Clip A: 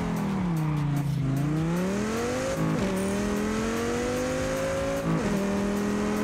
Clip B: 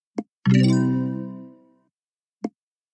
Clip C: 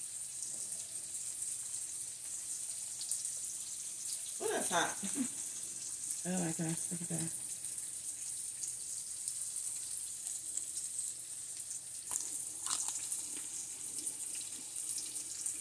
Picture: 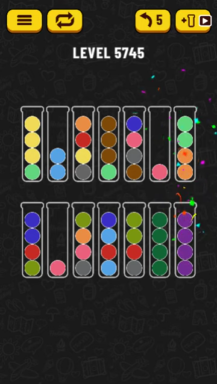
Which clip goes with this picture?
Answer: B